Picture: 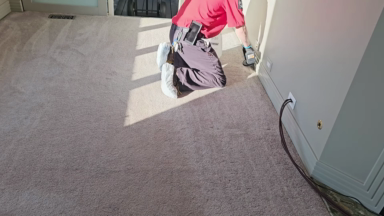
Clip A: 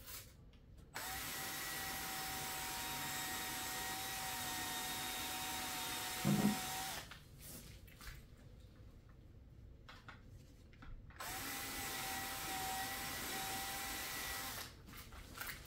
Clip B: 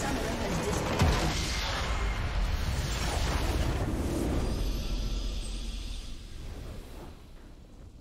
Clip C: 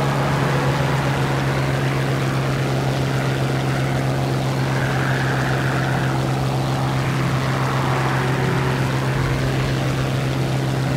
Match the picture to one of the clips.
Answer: A